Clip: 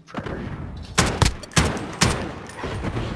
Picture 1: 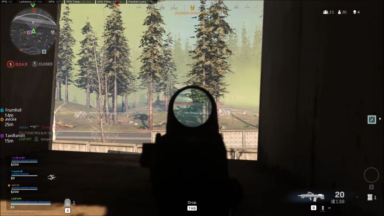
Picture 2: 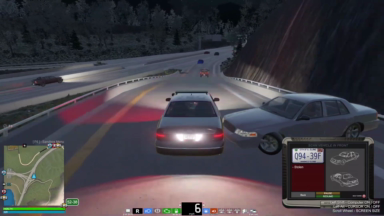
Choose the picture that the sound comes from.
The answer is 1